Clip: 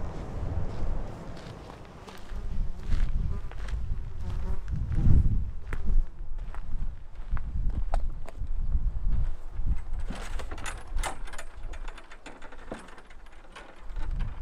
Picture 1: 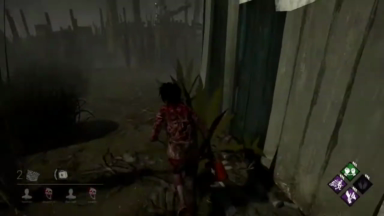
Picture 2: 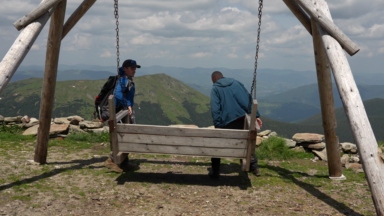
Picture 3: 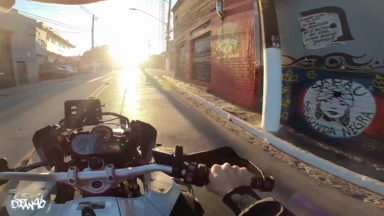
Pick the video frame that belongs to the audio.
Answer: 2